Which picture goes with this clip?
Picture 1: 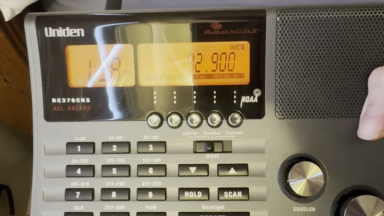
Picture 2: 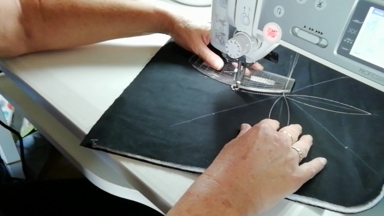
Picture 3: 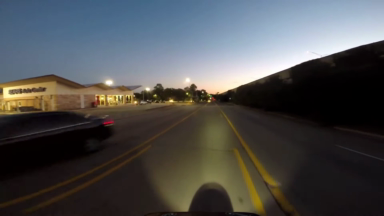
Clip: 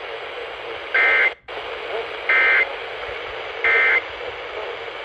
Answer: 1